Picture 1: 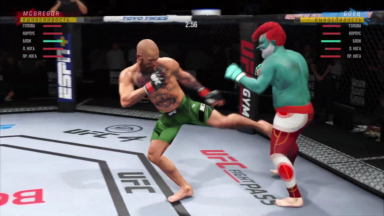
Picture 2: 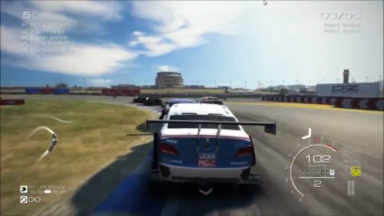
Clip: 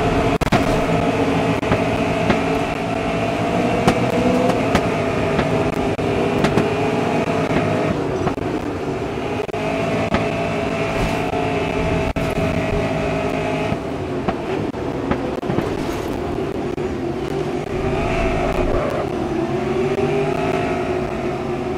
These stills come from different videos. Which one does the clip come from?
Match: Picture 2